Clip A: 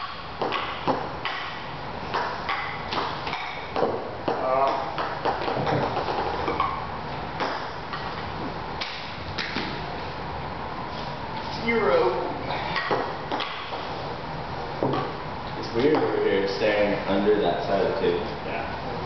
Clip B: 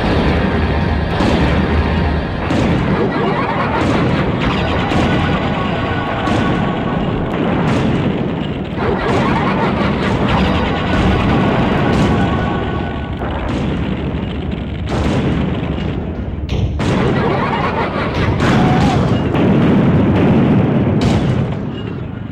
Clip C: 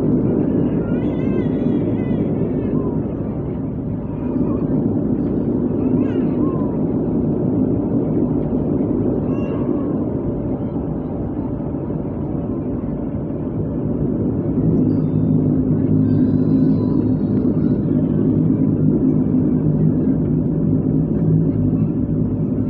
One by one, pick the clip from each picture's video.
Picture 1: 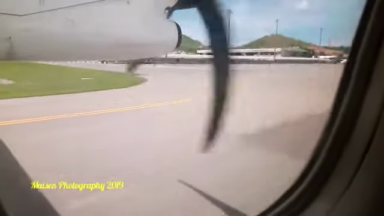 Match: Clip C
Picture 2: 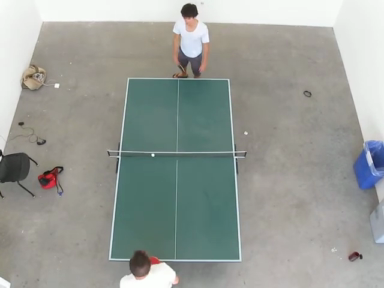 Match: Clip A